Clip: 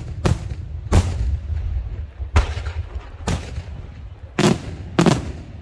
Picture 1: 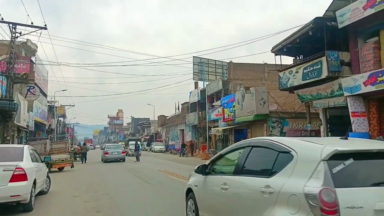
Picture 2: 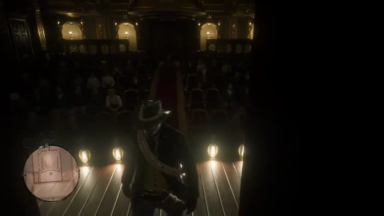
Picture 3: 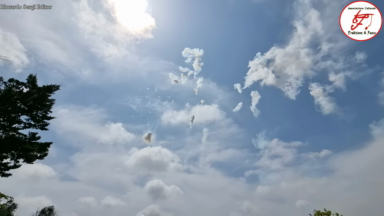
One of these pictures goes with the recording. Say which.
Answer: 3